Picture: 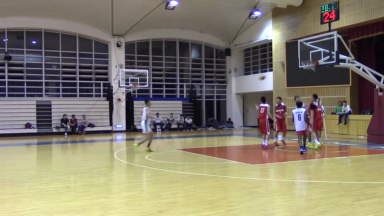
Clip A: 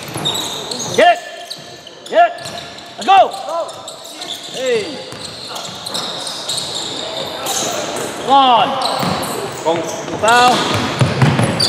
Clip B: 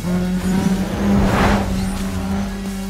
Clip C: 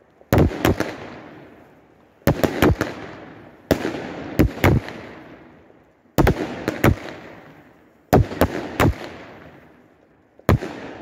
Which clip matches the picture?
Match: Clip A